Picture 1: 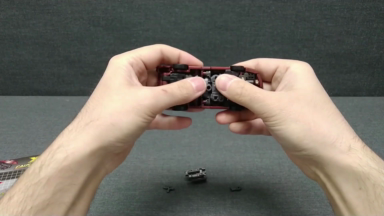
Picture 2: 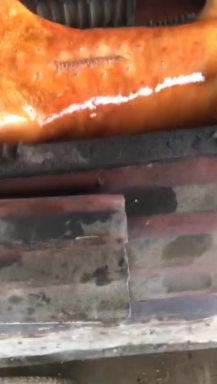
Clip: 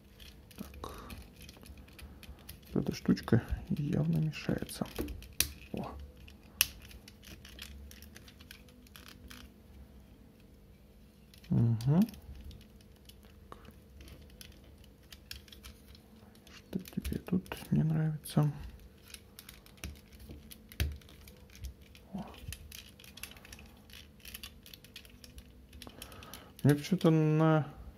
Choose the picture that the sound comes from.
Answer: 1